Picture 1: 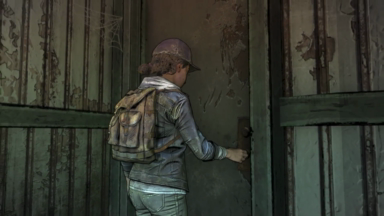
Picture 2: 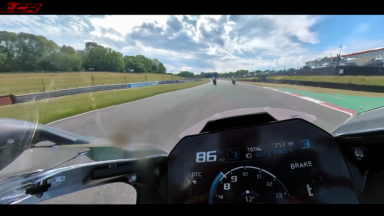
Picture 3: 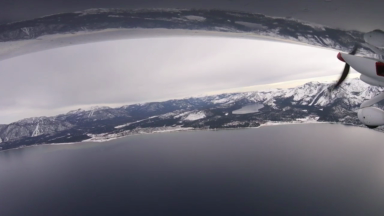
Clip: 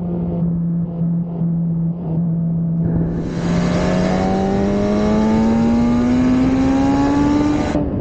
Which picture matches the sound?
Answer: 2